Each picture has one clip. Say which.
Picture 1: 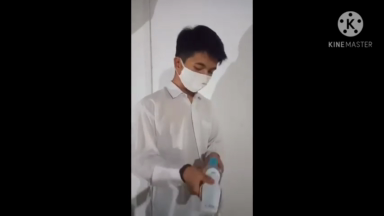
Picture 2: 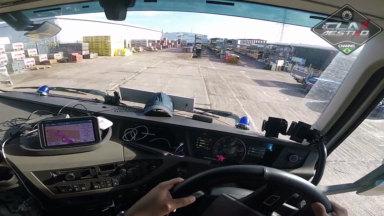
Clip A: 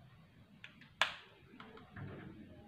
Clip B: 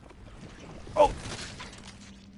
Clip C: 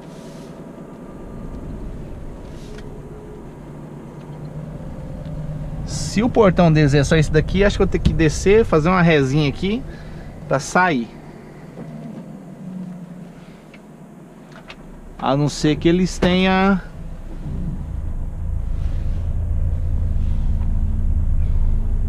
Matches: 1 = A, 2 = C